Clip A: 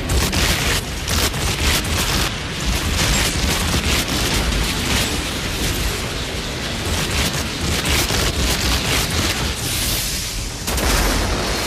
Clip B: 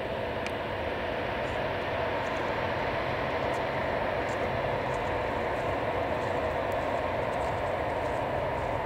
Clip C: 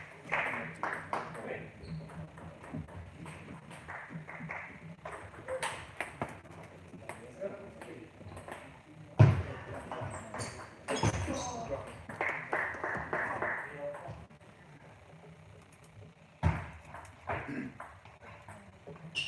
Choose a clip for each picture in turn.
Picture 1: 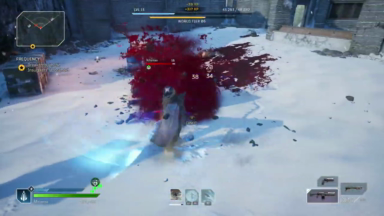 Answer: A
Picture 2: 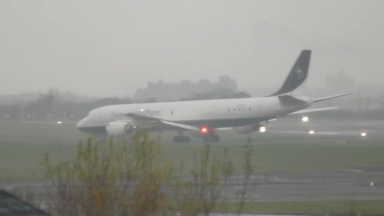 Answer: B